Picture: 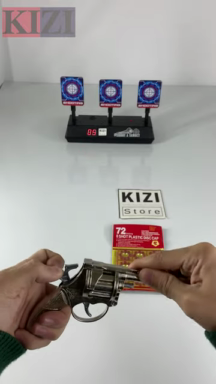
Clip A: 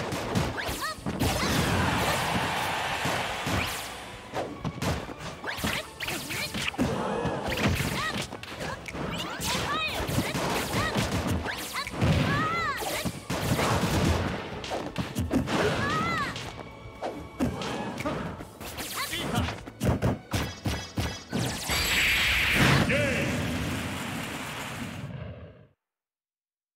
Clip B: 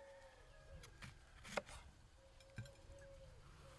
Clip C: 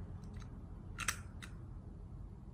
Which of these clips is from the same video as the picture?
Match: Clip C